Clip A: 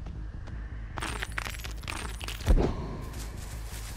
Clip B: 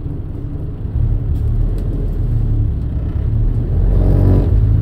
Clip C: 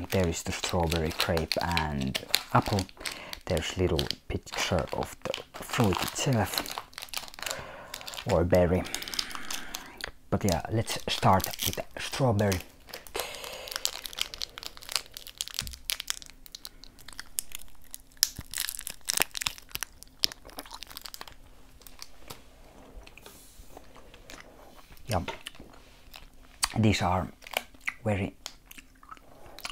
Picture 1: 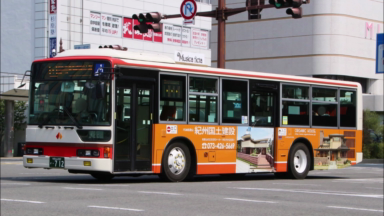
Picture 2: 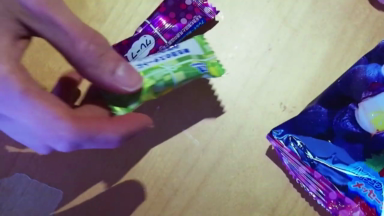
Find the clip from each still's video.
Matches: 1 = B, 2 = C